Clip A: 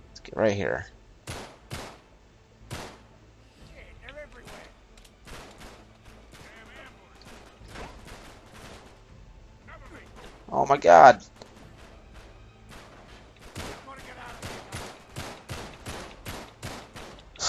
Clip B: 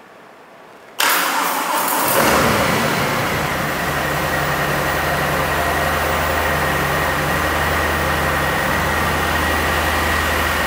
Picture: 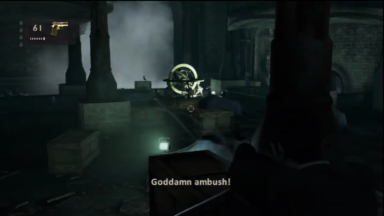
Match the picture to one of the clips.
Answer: A